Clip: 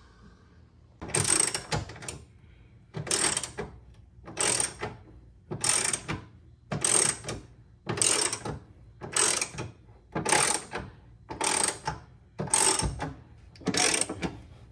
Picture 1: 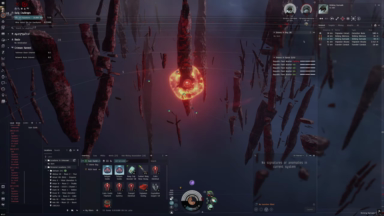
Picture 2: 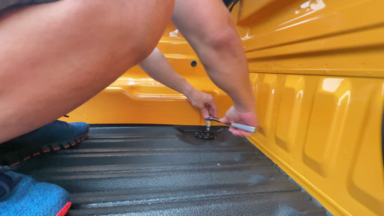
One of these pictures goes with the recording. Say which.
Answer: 2